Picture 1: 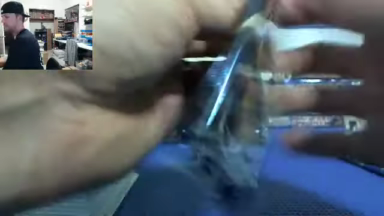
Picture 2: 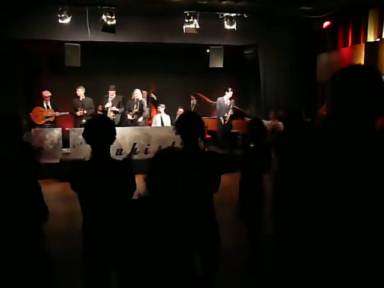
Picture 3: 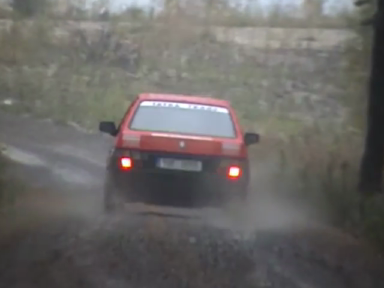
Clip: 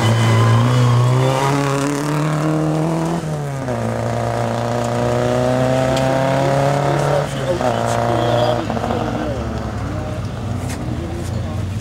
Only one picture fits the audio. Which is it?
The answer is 3